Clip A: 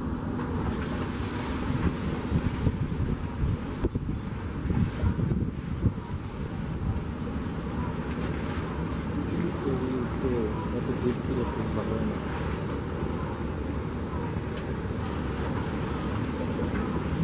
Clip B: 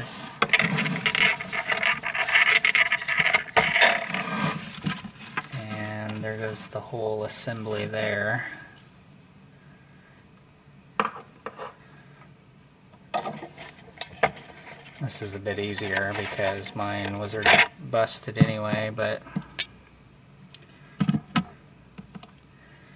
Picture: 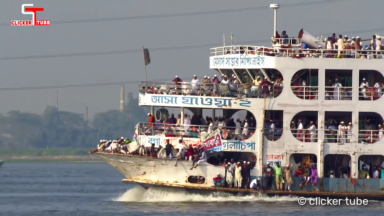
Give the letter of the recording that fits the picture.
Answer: A